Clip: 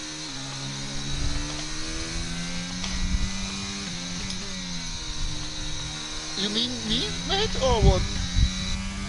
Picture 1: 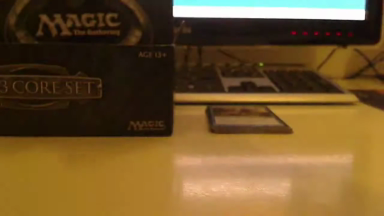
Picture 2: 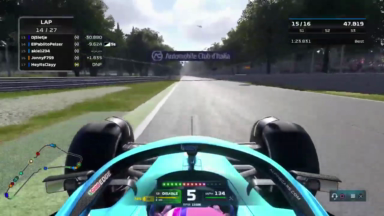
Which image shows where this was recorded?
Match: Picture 2